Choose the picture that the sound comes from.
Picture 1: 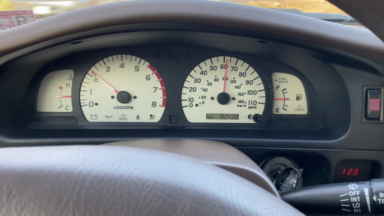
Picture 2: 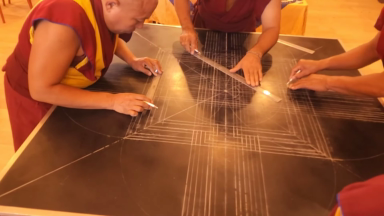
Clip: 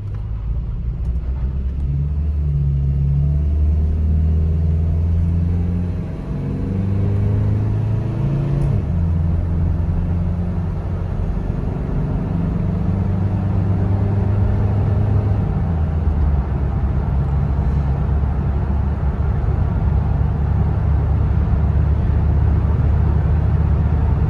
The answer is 1